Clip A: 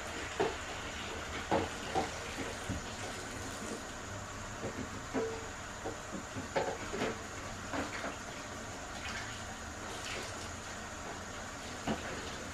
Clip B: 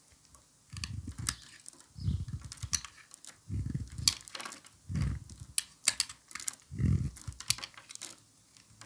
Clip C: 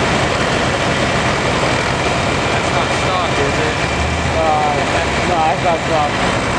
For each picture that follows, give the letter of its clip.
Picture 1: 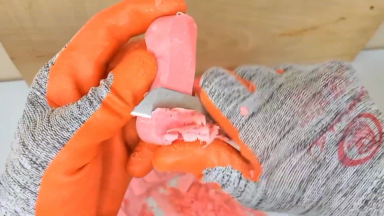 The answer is B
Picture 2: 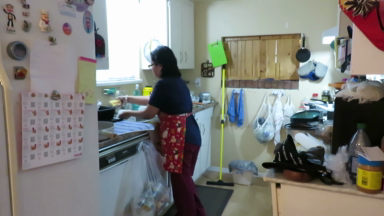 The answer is A